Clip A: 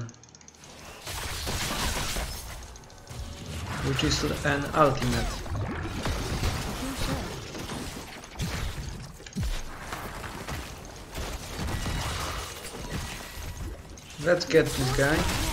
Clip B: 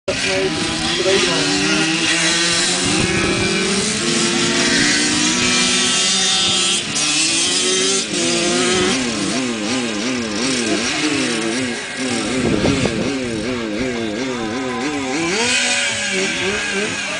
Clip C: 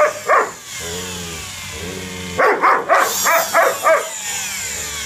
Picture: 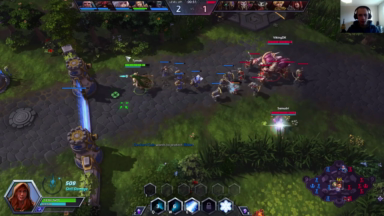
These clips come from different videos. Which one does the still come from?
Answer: A